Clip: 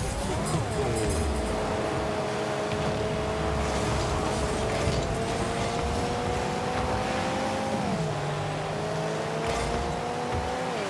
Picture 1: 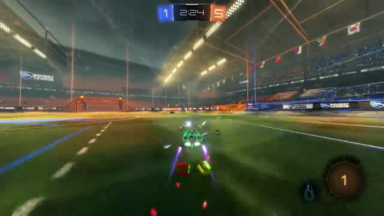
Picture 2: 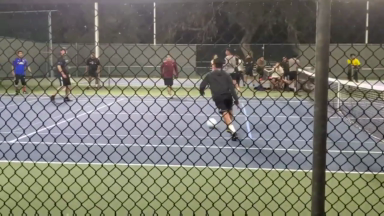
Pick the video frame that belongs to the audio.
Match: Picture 1